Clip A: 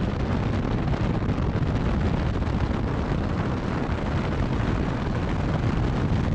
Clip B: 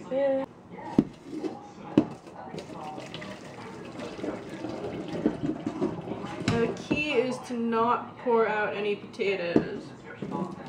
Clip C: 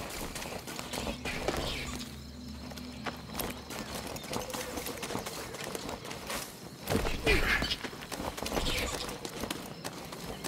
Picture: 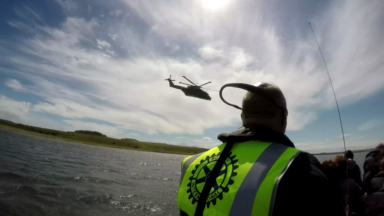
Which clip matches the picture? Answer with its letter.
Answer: A